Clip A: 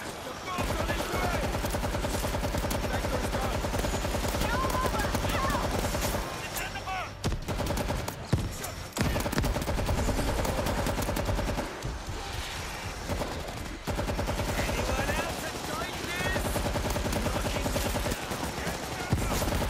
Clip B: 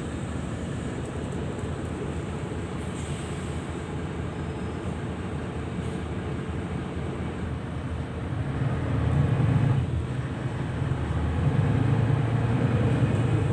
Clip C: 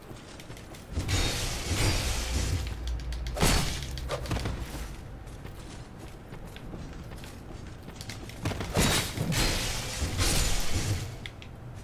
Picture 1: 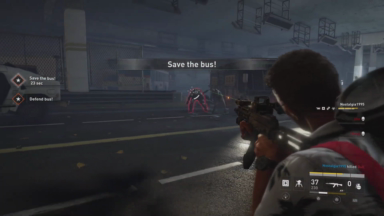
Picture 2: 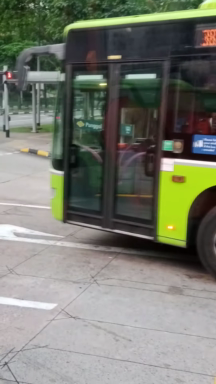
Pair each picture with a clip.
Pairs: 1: A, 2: B